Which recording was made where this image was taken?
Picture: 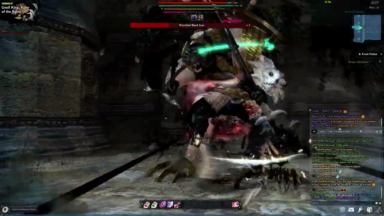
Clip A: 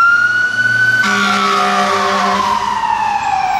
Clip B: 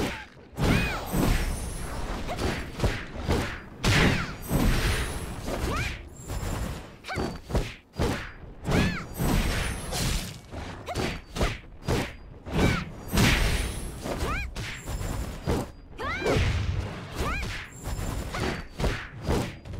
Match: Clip B